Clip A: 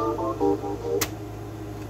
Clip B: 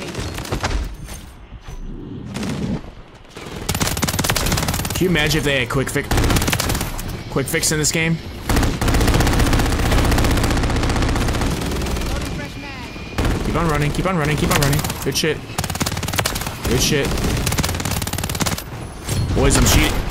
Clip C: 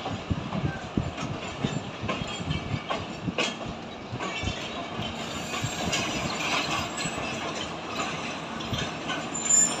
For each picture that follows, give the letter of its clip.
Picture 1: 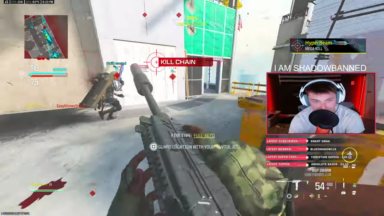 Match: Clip B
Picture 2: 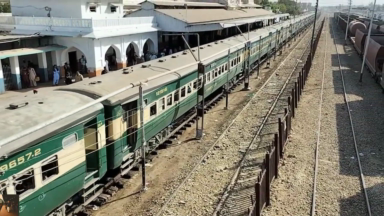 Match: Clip C